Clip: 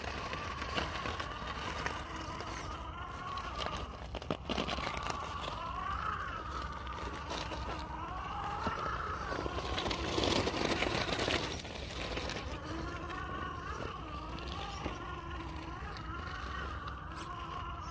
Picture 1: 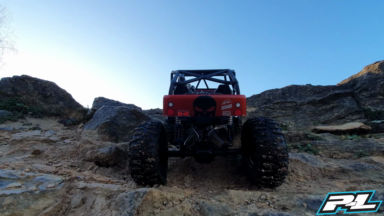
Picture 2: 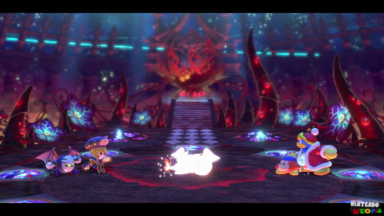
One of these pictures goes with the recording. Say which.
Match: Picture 1